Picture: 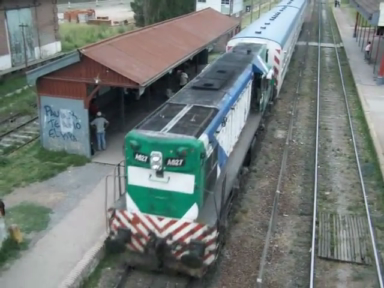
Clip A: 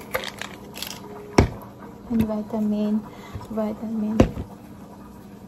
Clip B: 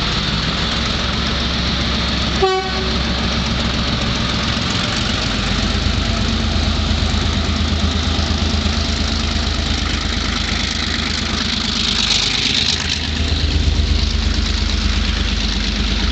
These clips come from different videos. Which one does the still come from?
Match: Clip B